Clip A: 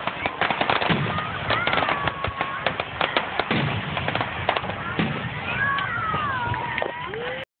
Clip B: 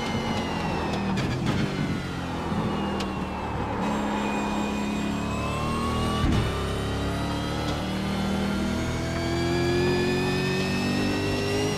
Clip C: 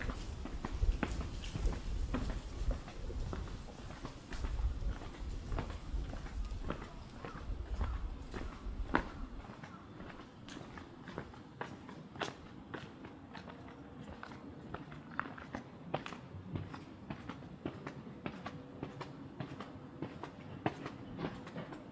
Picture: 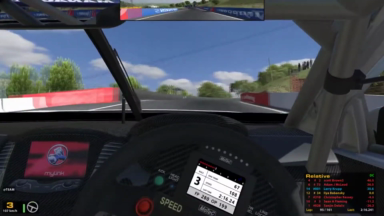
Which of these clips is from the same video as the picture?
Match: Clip B